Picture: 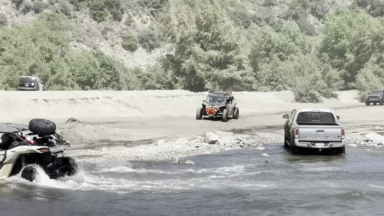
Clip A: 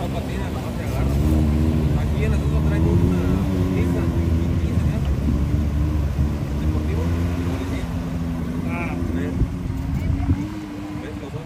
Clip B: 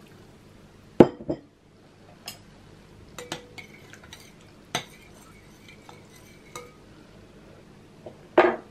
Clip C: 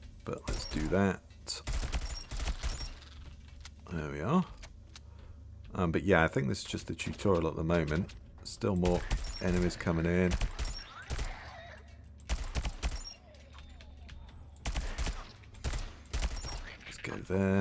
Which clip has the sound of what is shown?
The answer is A